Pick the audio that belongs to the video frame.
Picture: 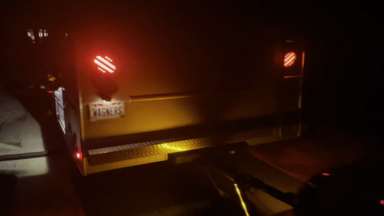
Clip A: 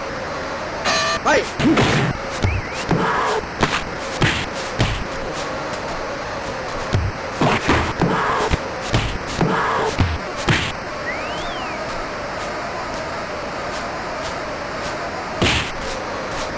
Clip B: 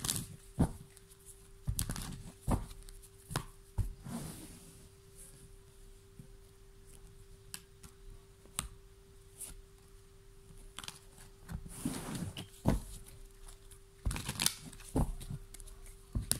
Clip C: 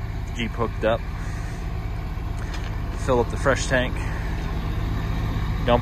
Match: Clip C